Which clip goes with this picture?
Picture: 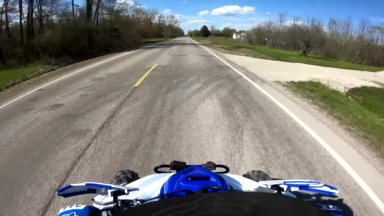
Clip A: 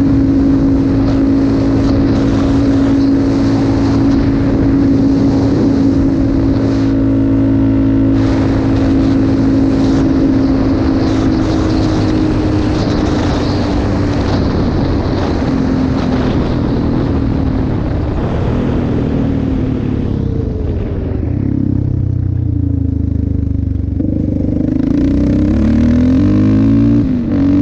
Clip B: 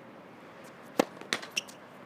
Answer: A